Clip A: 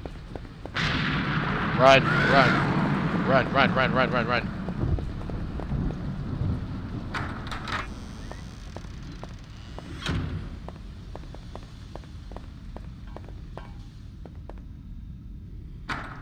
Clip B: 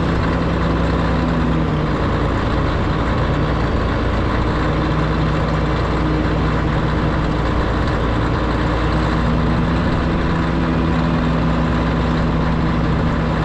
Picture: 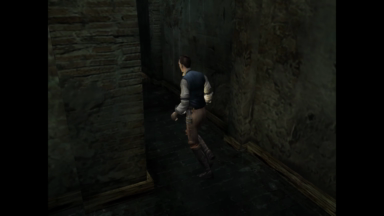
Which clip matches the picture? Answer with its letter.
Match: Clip A